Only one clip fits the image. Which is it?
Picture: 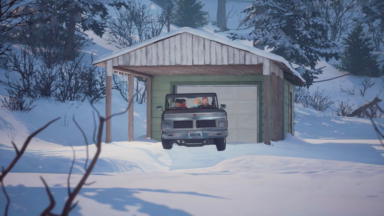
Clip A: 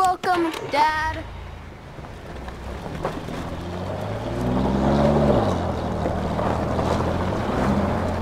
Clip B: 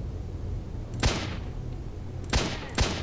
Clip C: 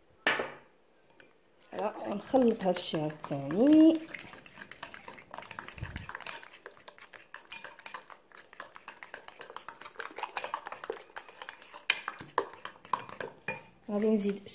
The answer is A